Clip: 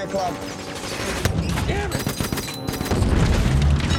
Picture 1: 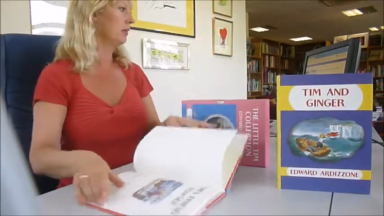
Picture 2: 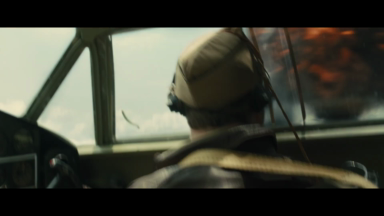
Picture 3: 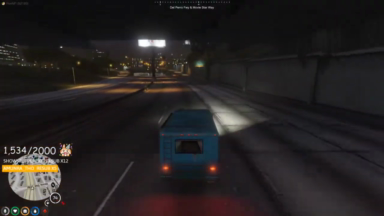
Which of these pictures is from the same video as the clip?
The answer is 2